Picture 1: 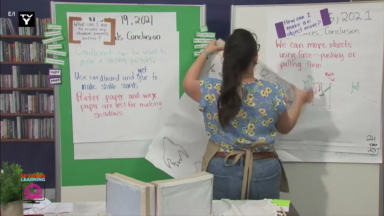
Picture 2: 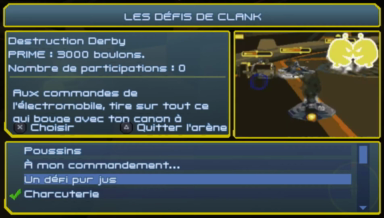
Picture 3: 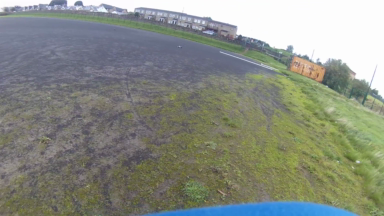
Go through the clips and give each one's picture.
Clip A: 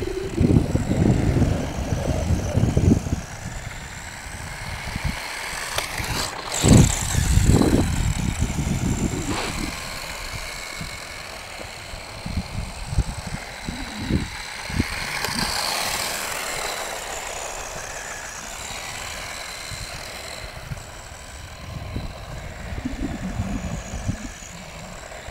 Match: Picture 3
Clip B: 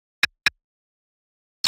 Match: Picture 2